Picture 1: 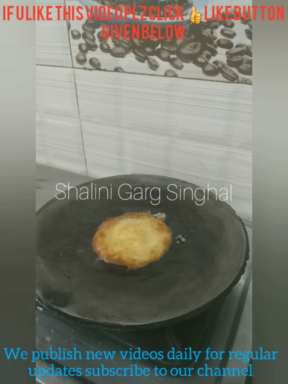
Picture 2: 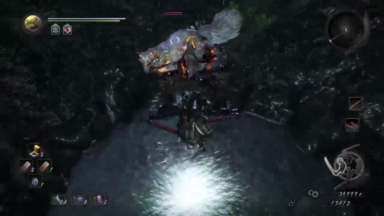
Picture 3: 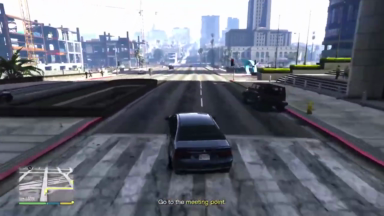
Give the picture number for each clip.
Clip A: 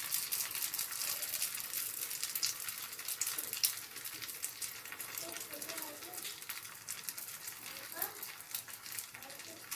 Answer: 1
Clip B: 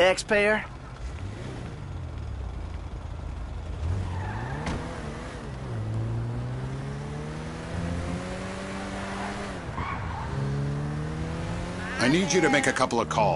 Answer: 3